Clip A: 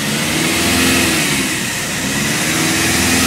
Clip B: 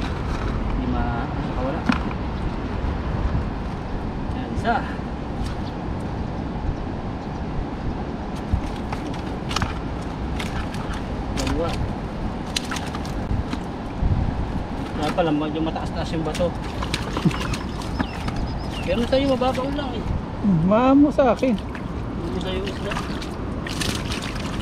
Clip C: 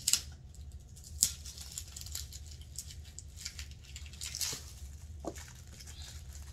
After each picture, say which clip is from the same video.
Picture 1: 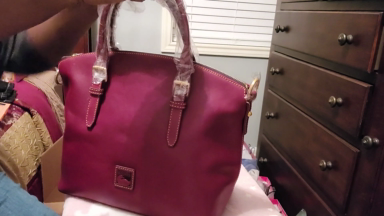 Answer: C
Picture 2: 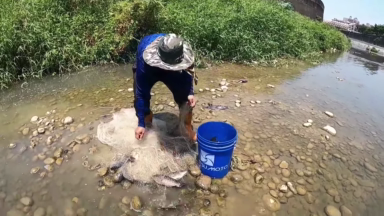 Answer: B